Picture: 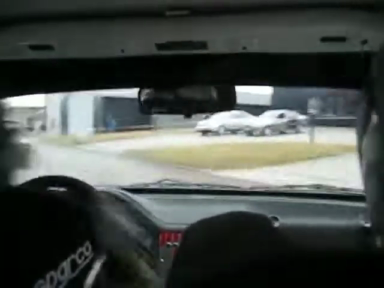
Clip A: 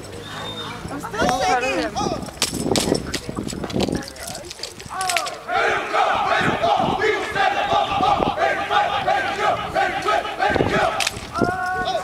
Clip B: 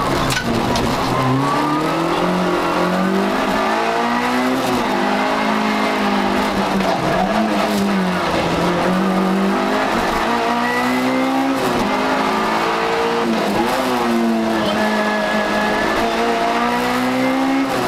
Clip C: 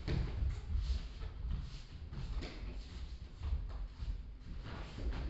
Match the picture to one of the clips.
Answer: B